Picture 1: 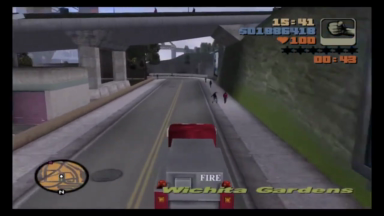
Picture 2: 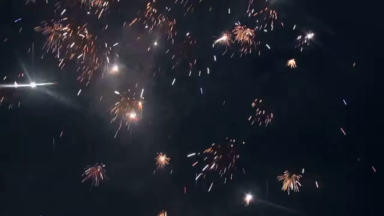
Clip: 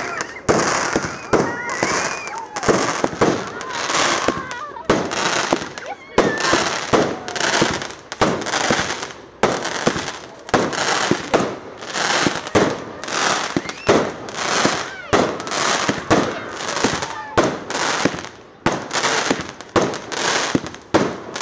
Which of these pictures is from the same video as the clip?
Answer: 2